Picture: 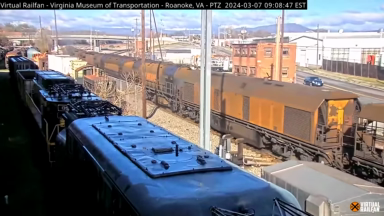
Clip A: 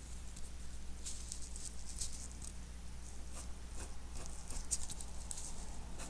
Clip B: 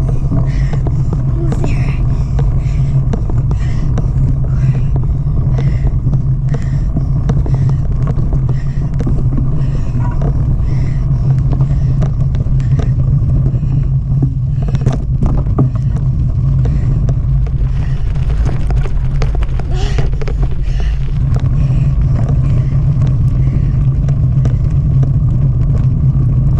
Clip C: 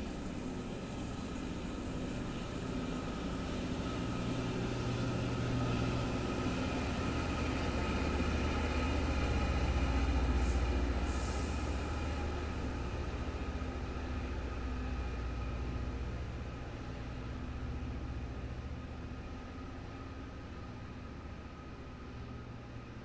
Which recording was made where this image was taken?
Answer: C